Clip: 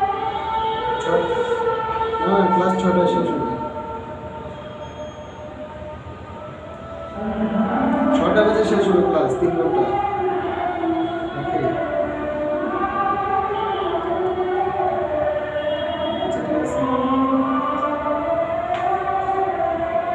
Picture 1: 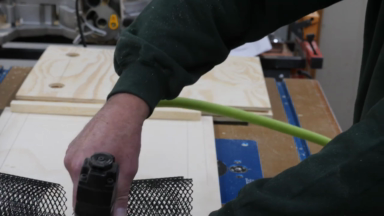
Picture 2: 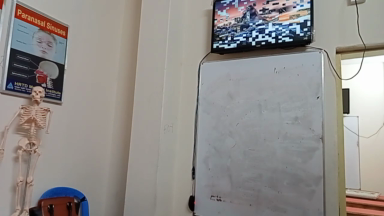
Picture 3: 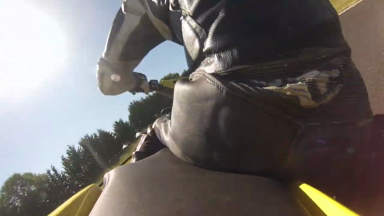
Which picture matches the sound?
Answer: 2